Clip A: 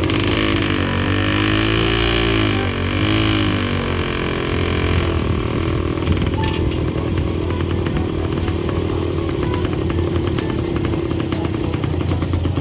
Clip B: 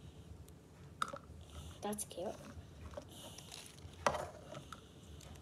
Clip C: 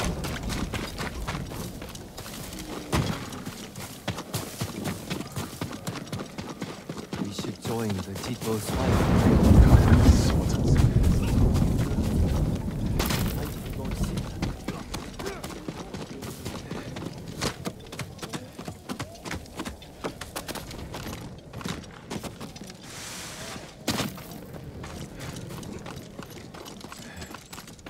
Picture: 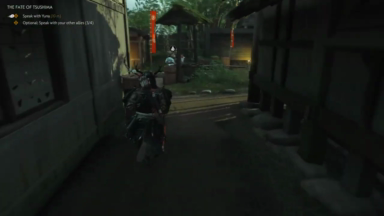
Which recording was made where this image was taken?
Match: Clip C